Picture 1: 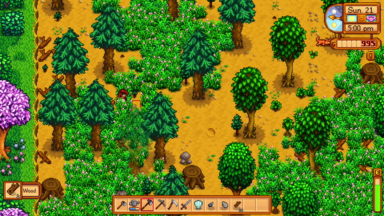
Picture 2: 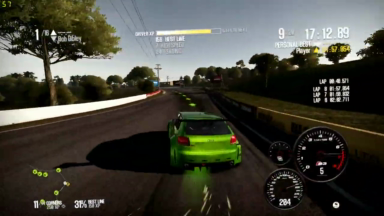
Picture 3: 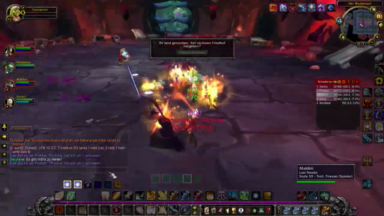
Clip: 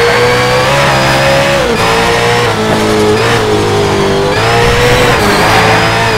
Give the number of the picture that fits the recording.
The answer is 2